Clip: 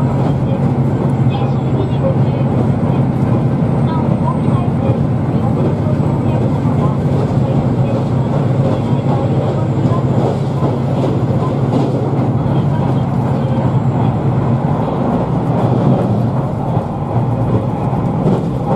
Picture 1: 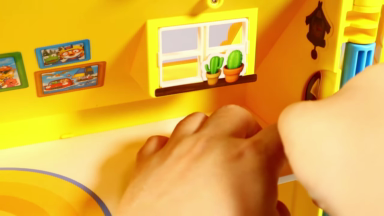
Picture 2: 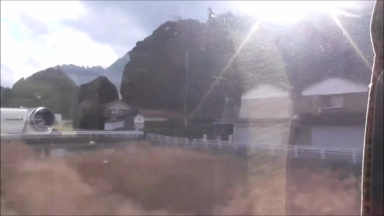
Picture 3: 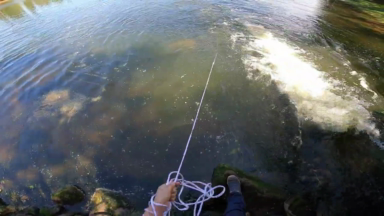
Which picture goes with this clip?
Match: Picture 2